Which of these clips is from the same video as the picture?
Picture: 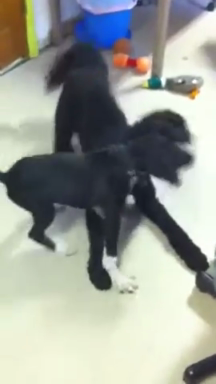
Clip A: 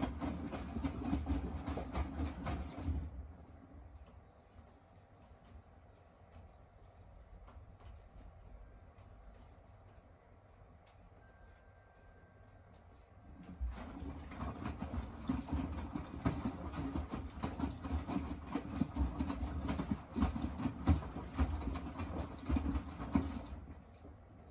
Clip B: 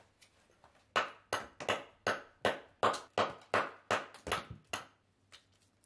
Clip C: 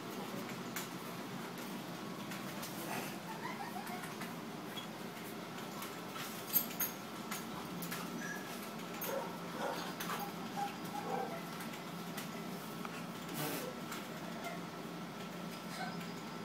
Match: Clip C